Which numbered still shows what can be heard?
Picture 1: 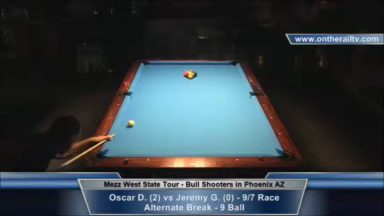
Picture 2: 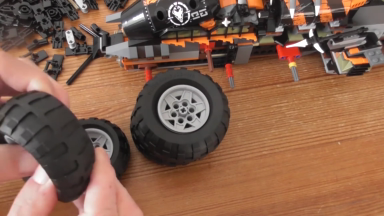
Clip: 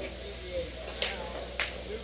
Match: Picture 1